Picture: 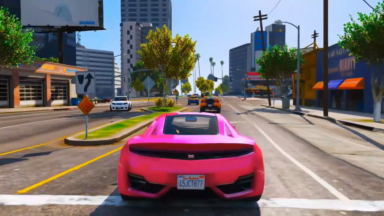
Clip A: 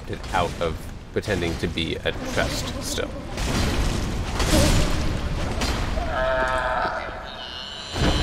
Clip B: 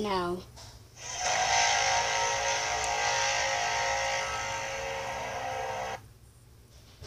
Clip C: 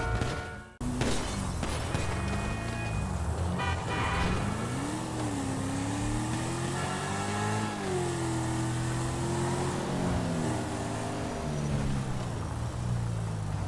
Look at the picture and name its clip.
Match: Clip C